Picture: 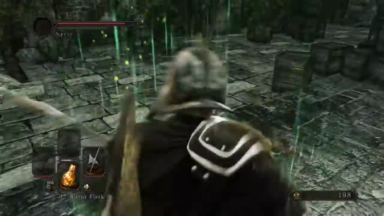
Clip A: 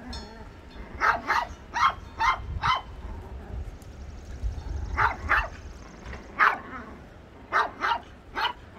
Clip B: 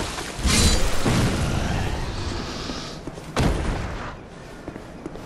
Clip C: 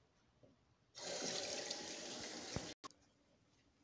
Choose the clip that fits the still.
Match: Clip B